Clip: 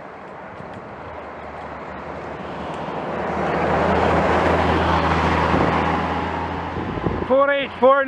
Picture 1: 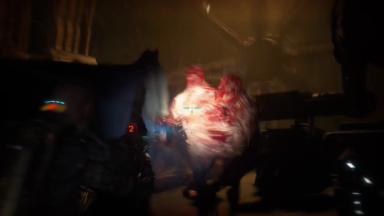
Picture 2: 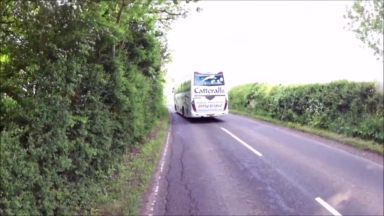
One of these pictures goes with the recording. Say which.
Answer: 2